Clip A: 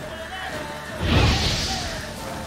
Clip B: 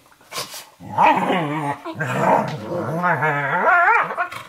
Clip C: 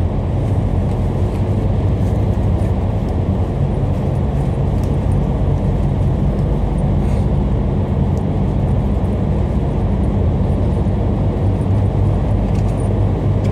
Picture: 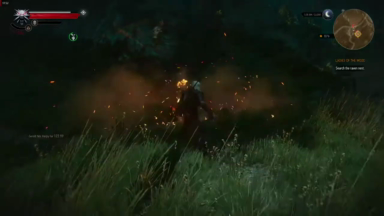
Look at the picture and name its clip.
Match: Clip A